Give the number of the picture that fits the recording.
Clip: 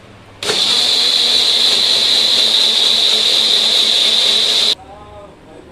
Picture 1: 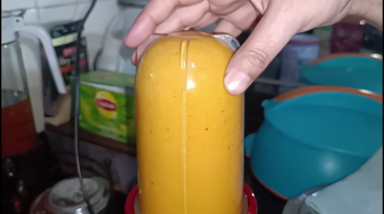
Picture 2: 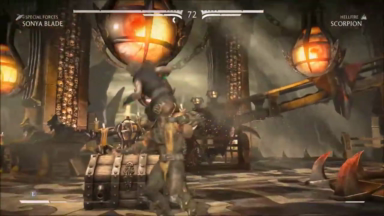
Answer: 1